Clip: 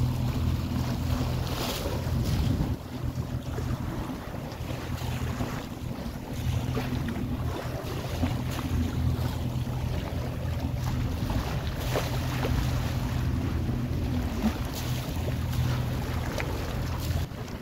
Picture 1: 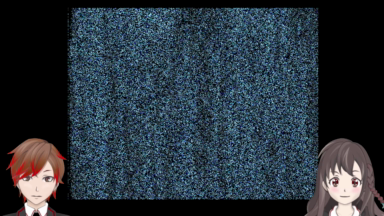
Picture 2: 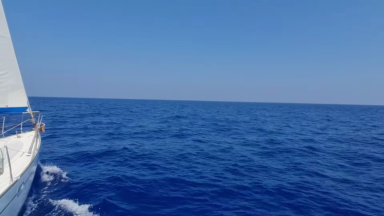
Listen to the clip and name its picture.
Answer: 2